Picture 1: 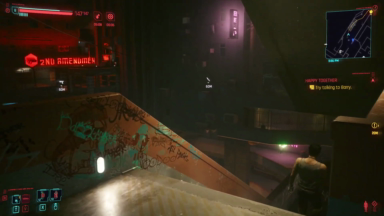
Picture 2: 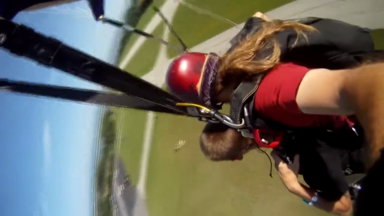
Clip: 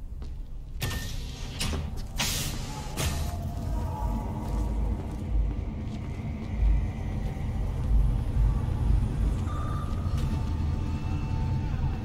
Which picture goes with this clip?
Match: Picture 1